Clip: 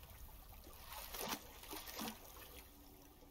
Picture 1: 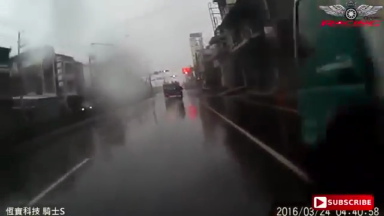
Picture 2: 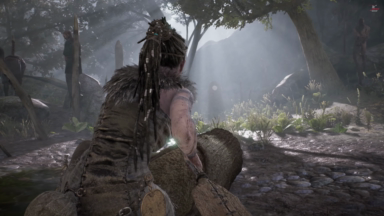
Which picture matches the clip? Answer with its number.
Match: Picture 2